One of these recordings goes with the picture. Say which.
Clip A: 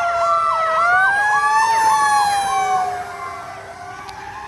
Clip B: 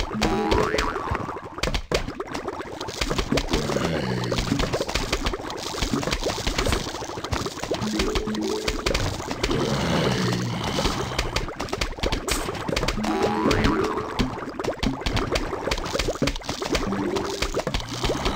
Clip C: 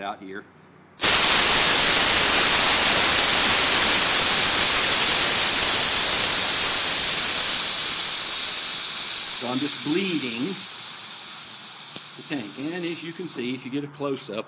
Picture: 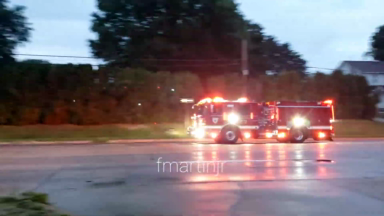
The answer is A